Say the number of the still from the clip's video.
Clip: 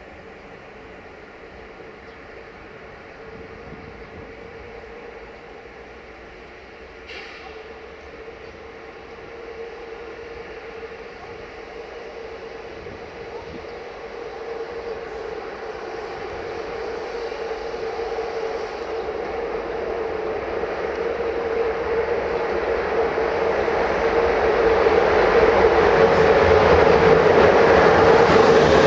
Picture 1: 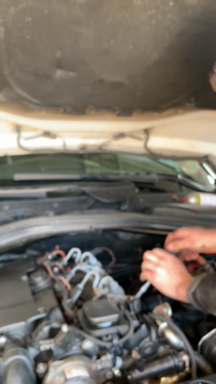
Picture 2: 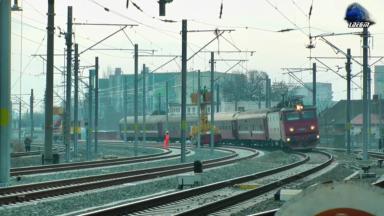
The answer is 2